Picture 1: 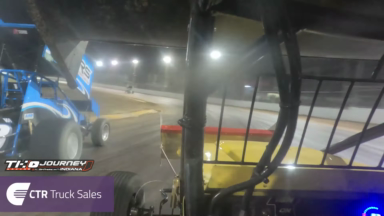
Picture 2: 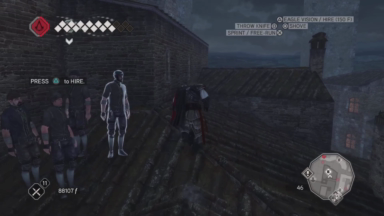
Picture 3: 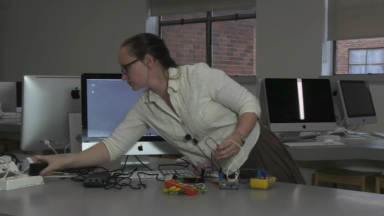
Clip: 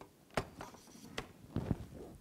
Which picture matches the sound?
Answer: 3